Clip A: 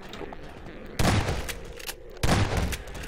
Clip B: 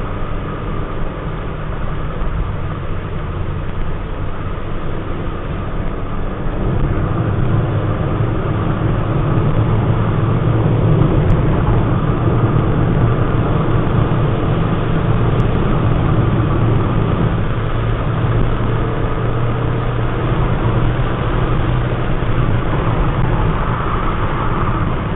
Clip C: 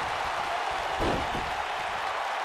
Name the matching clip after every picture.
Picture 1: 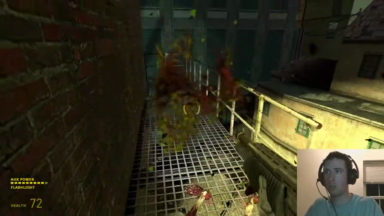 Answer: A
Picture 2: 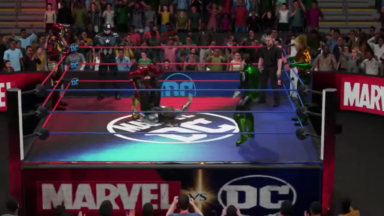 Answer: C